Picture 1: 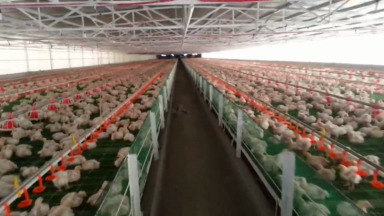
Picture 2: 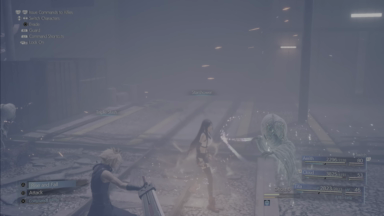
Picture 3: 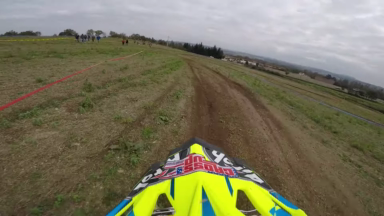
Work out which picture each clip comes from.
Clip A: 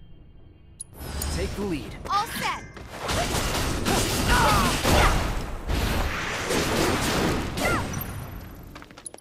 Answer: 2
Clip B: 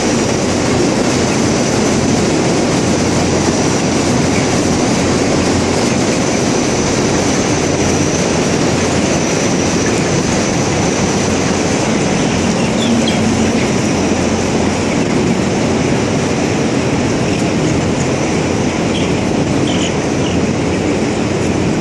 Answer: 1